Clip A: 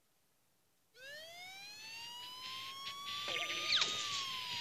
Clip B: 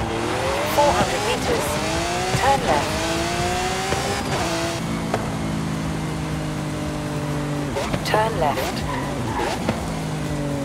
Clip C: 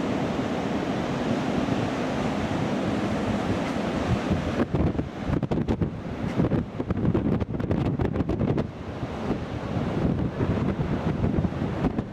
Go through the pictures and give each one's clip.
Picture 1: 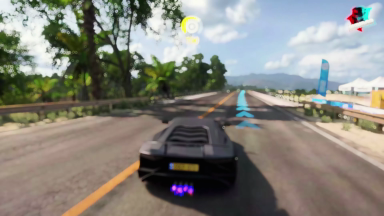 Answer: B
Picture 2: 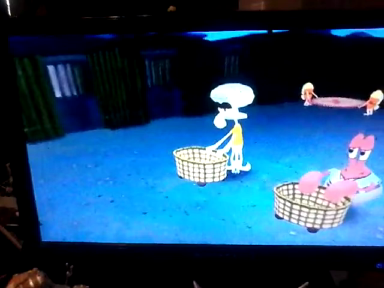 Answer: A